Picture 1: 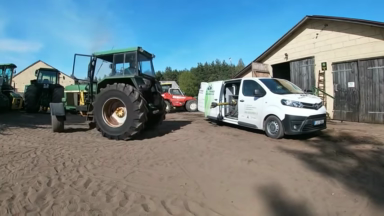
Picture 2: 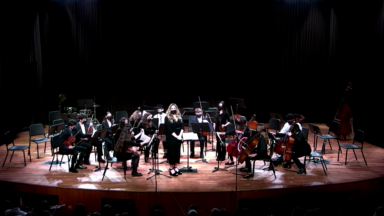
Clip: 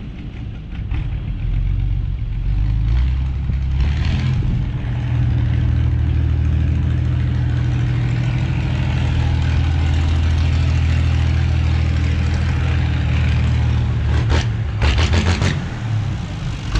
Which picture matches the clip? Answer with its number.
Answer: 1